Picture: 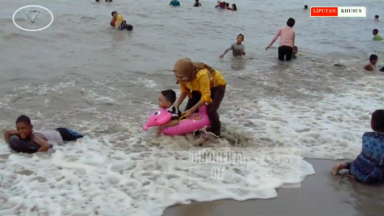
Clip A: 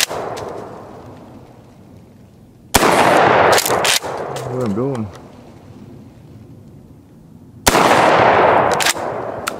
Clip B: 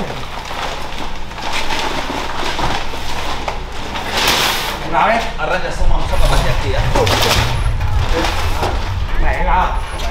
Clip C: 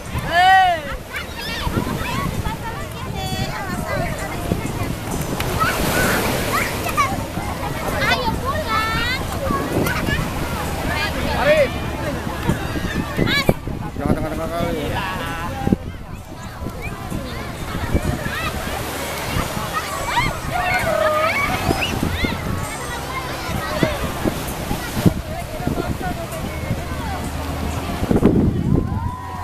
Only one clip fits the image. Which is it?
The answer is C